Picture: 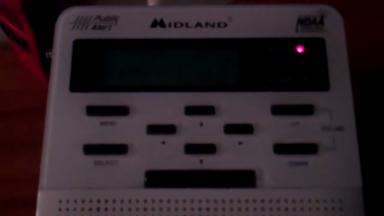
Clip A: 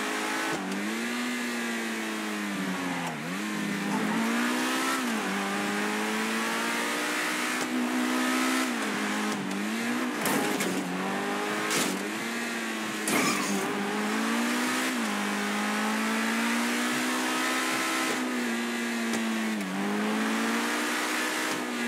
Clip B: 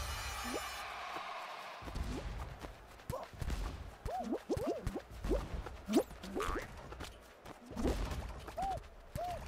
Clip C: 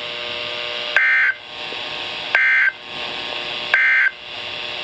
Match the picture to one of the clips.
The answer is C